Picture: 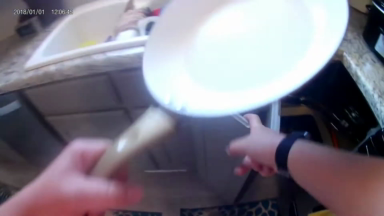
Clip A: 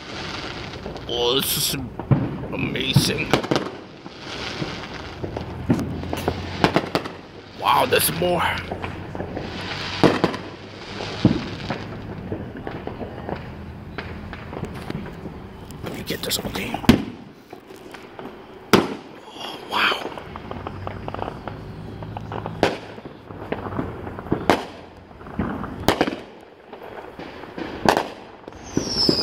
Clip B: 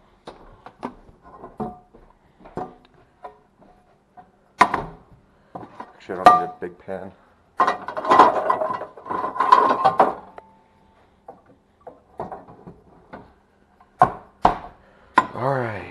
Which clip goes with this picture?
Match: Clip B